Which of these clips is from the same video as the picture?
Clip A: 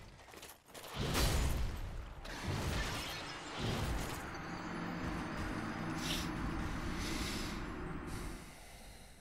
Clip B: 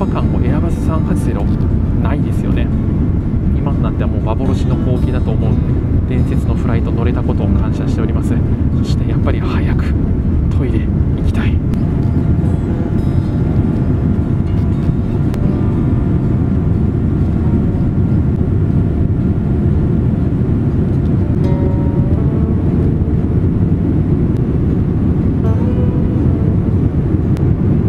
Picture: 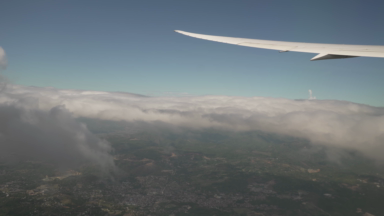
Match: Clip B